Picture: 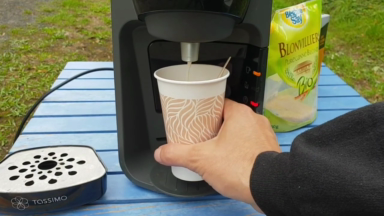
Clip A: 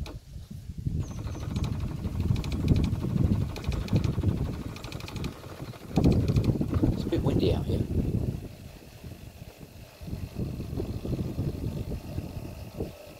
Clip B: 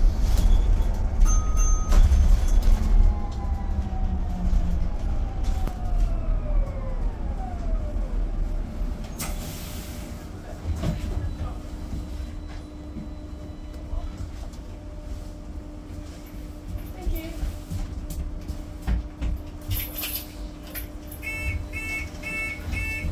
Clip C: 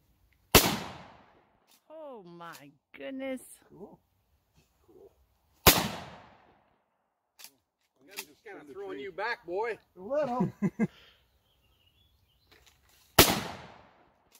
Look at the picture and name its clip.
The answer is A